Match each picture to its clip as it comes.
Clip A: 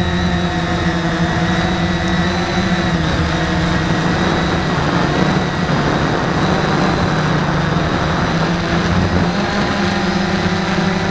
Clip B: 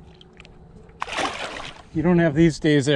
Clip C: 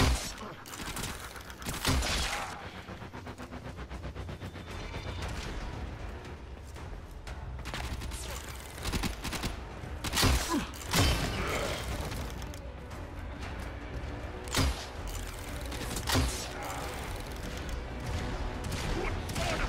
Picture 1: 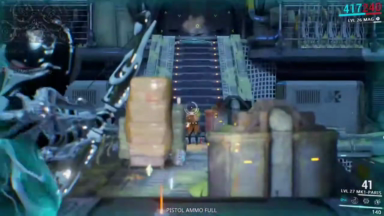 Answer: C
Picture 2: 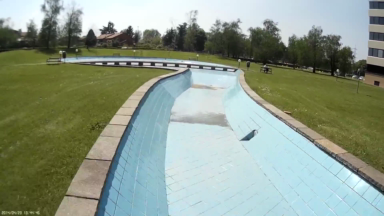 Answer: A